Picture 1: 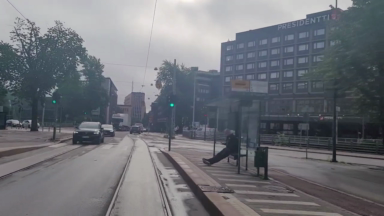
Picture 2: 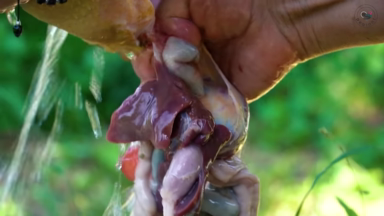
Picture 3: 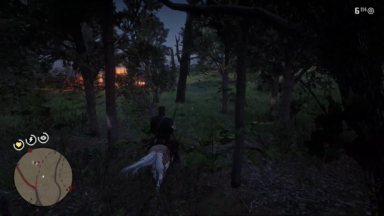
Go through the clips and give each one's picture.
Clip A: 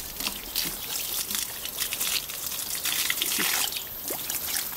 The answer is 2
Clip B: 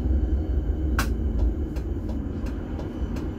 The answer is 1